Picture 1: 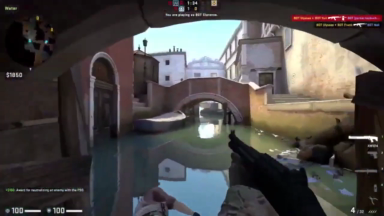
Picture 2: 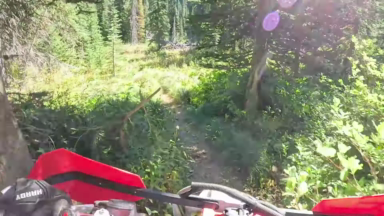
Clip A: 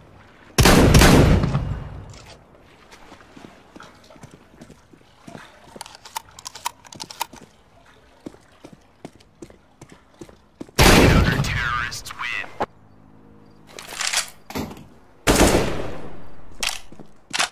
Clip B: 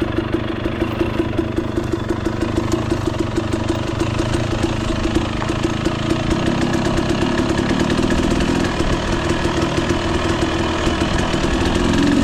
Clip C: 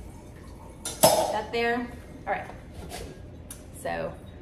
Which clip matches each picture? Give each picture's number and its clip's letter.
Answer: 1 A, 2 B